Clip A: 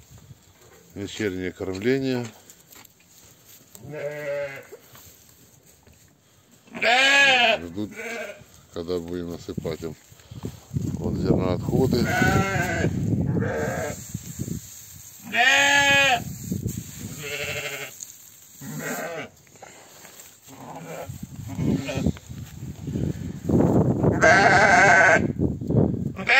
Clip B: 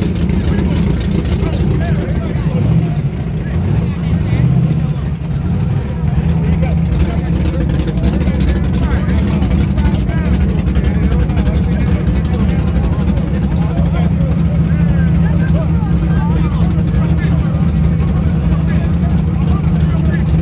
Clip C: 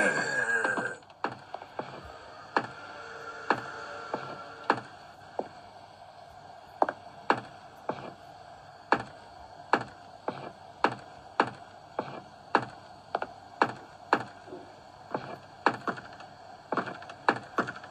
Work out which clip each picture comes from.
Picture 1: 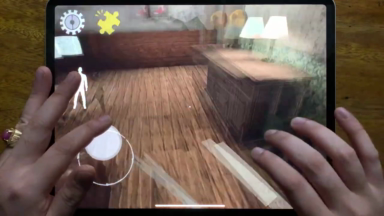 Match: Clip C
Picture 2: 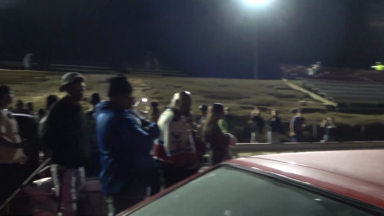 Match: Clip B